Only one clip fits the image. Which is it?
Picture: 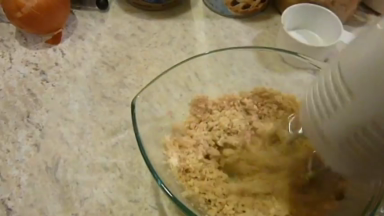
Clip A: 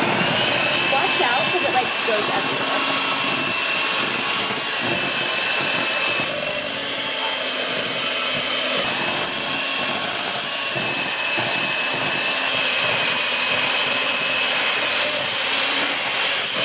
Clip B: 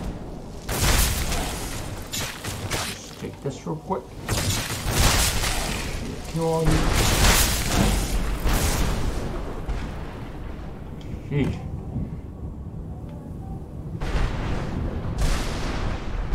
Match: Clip A